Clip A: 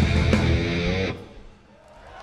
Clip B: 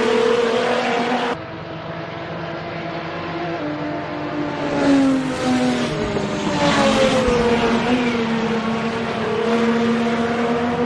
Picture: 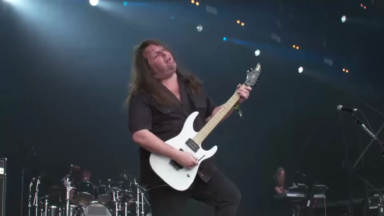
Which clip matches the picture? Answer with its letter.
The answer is A